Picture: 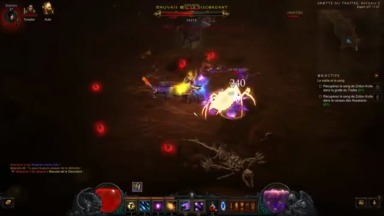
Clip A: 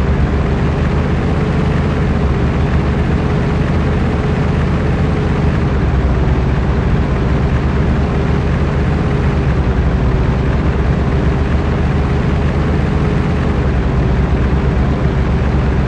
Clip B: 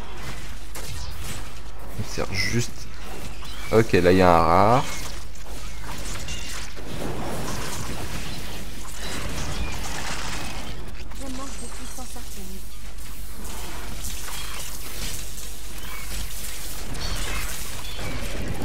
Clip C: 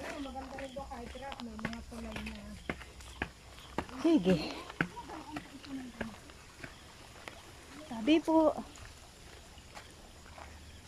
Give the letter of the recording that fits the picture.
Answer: B